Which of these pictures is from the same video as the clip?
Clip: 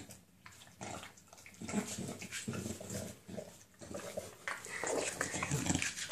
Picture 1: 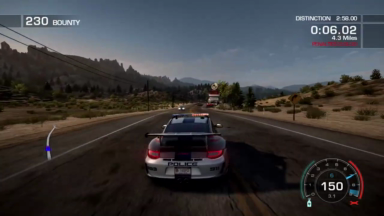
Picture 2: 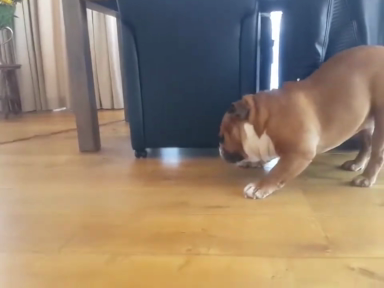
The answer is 2